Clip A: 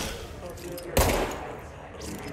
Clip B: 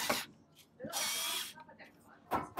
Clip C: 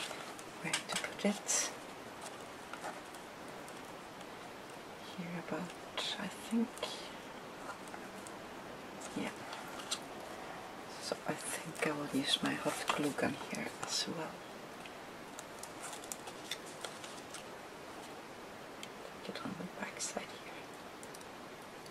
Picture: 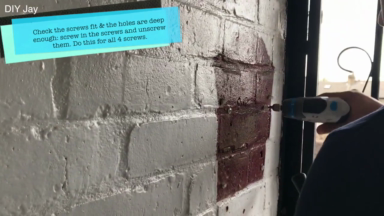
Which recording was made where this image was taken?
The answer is B